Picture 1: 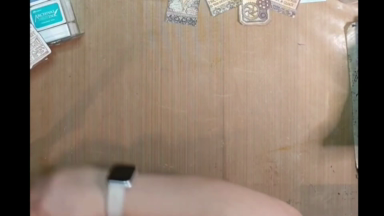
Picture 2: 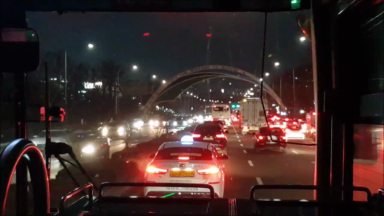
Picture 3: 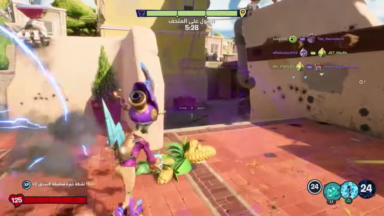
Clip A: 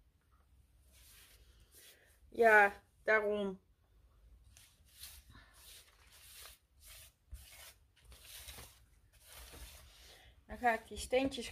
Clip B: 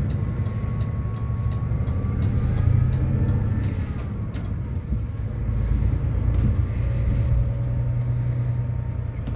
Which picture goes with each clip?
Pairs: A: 1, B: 2